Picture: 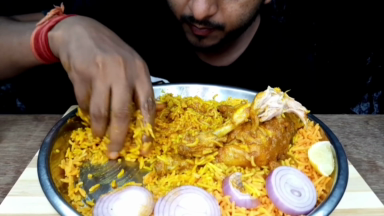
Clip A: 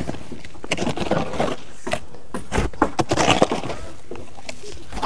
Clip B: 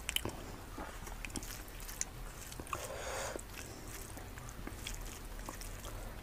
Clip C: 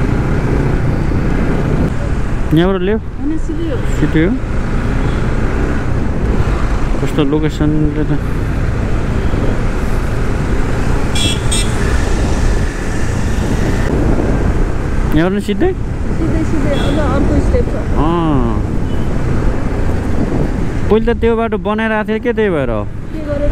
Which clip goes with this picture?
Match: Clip B